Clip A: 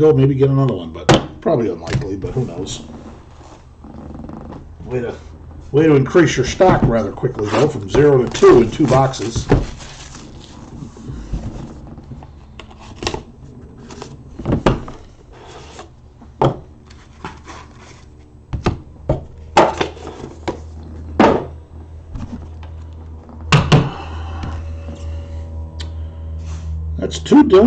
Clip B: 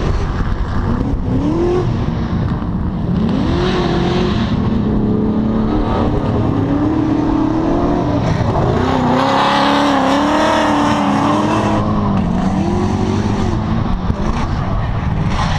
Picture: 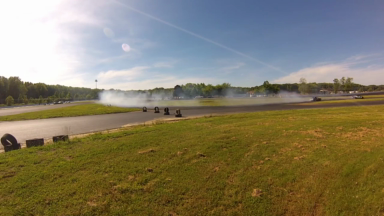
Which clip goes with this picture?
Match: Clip B